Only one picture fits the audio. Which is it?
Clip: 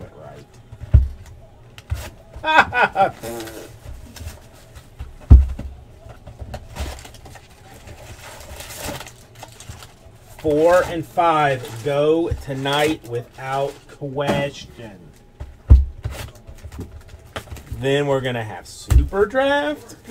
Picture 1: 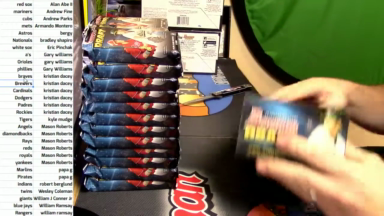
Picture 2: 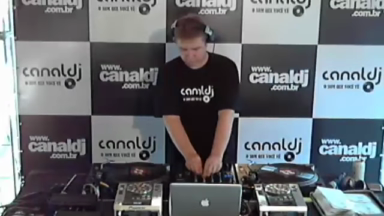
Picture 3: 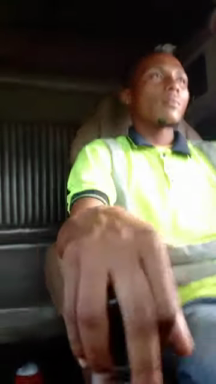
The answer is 1